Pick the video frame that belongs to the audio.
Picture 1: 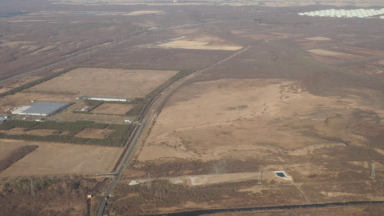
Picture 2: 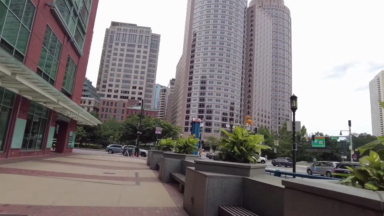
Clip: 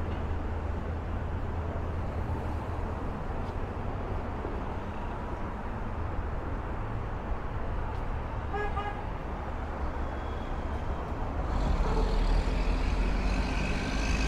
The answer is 2